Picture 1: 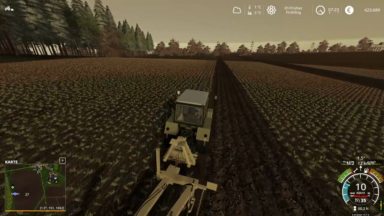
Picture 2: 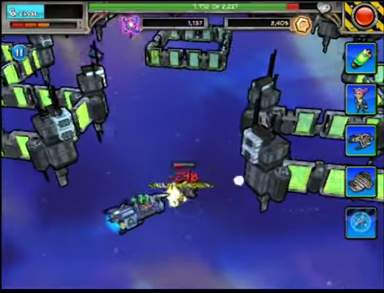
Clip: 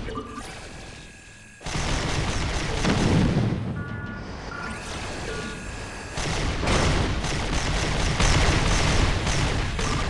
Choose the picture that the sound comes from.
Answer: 2